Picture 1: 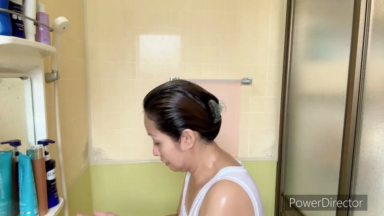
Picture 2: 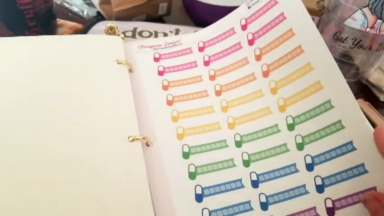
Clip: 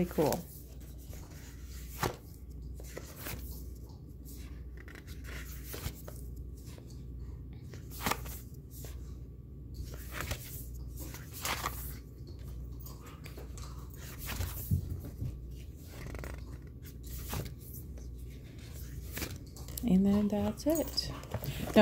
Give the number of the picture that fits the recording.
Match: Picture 2